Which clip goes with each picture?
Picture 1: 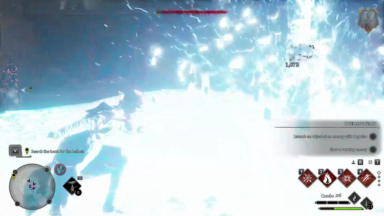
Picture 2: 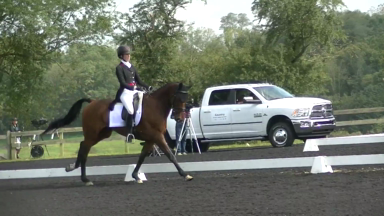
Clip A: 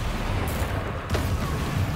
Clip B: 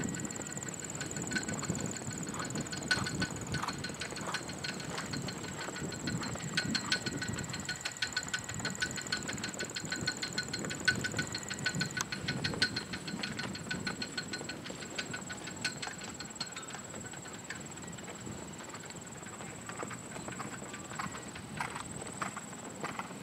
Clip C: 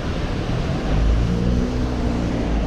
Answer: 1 A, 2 B